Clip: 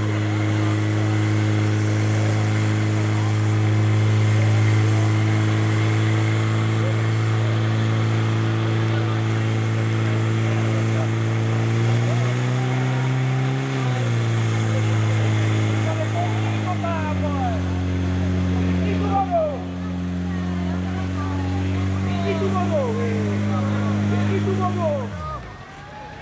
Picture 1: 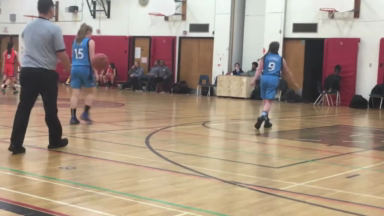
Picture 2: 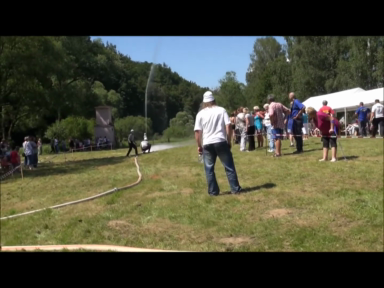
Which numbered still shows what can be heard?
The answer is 2